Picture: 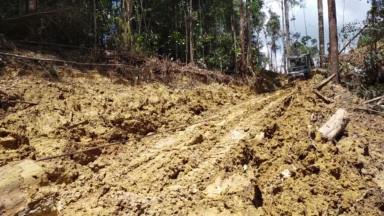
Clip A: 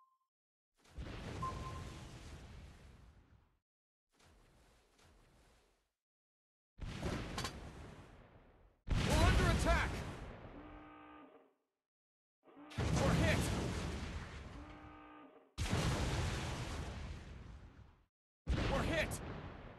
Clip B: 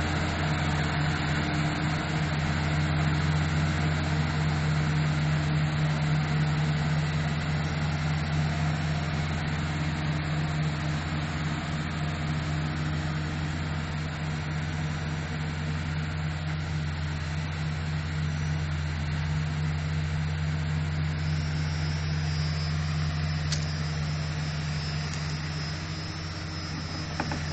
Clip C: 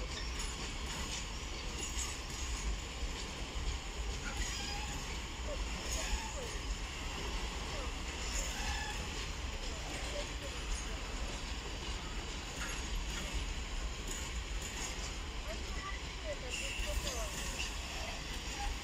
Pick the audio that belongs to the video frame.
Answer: B